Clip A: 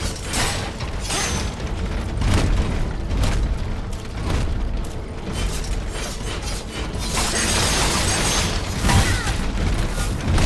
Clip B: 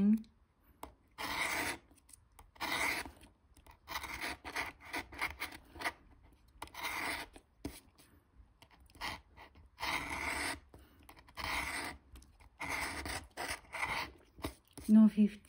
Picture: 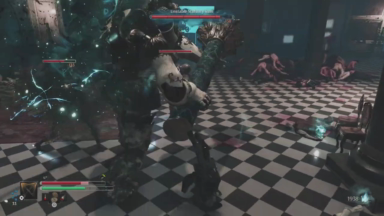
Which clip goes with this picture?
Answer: A